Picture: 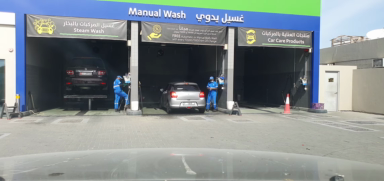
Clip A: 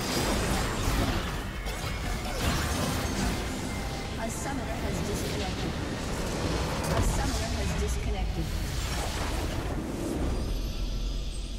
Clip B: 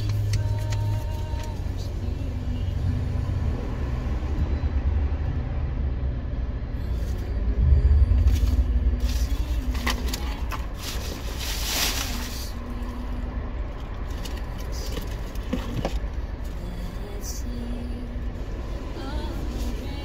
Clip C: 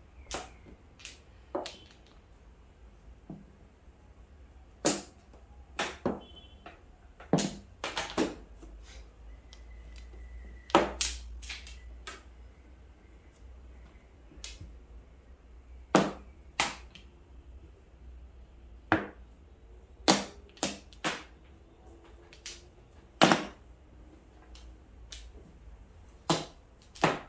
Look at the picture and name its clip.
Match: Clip B